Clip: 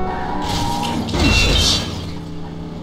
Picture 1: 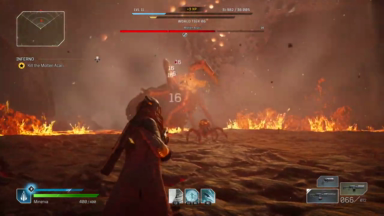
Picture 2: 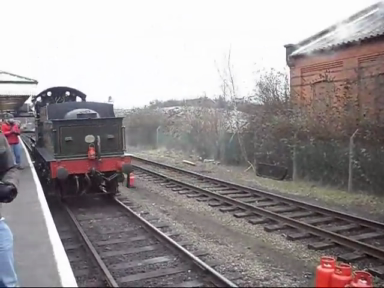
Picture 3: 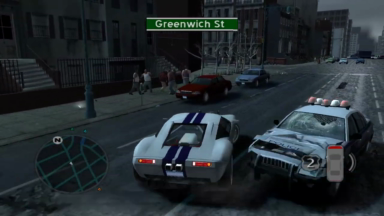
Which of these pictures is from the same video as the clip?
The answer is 3